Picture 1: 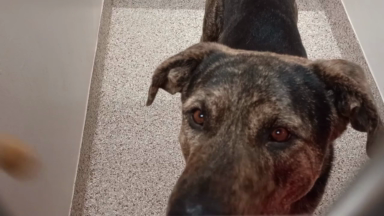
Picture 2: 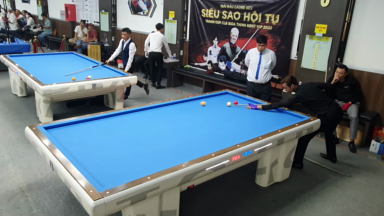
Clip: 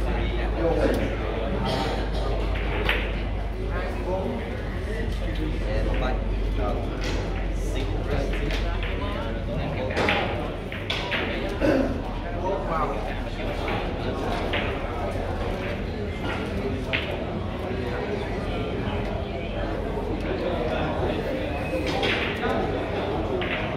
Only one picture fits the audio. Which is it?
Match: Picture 2